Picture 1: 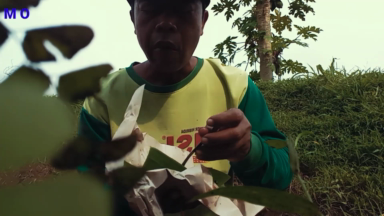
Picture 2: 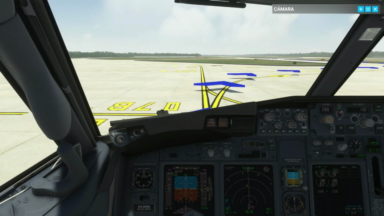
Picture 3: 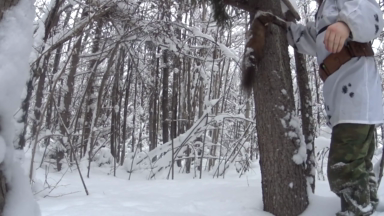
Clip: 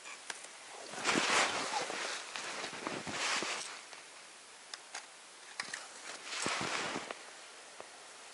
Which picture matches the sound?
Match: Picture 3